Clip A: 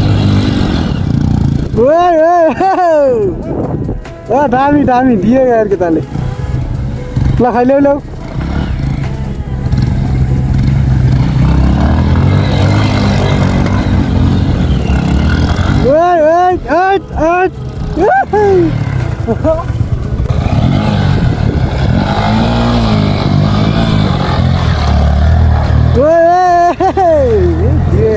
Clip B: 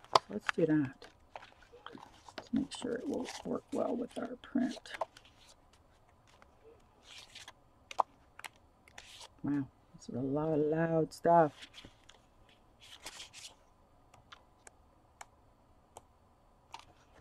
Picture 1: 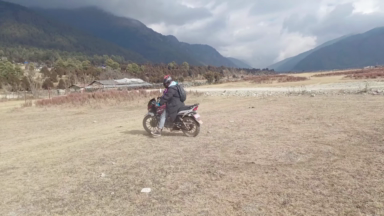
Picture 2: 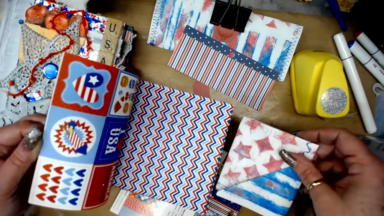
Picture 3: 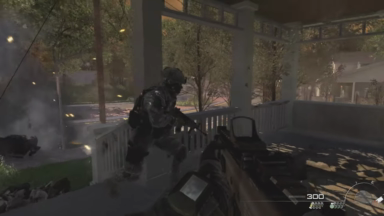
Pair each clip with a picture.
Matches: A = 1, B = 2